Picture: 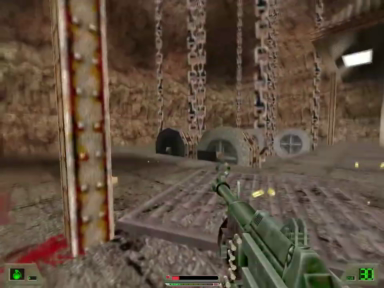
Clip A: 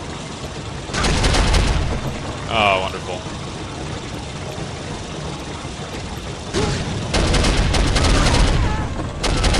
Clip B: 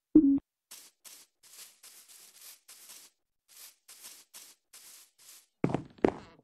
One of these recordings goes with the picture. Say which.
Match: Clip A